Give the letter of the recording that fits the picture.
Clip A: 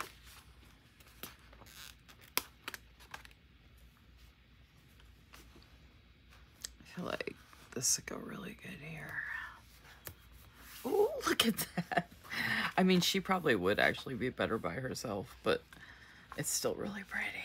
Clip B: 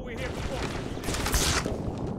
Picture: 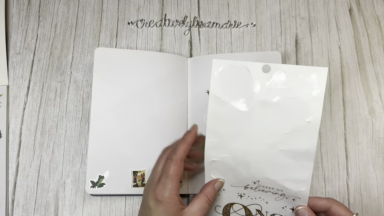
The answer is A